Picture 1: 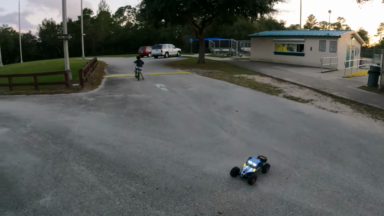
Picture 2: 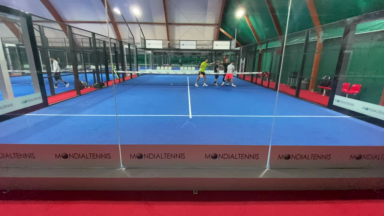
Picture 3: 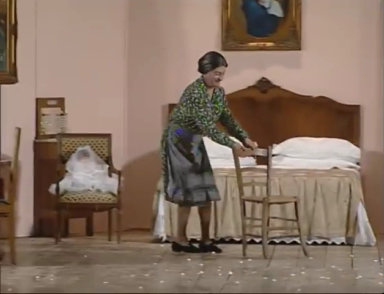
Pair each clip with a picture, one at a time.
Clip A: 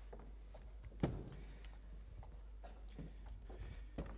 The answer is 3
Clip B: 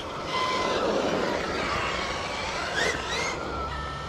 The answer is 1